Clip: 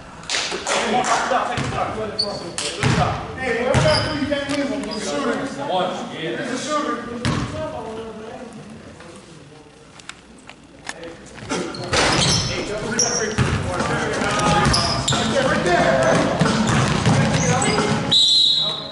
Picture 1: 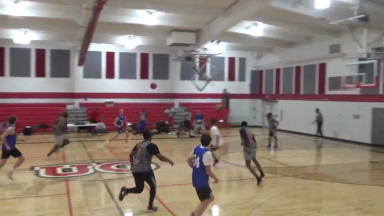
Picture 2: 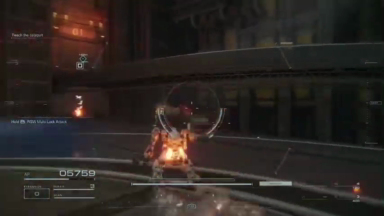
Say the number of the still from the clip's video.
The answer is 1